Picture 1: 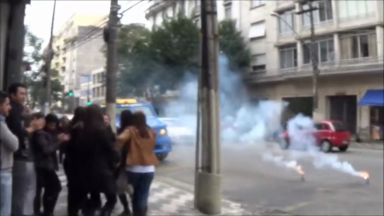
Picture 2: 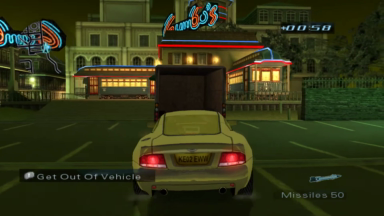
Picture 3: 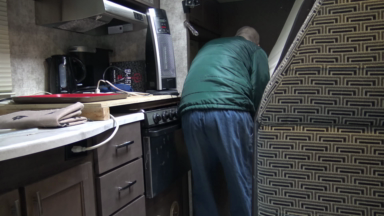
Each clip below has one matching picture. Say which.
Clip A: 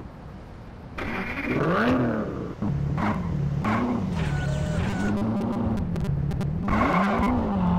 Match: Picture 2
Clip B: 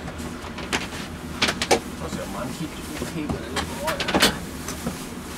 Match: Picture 3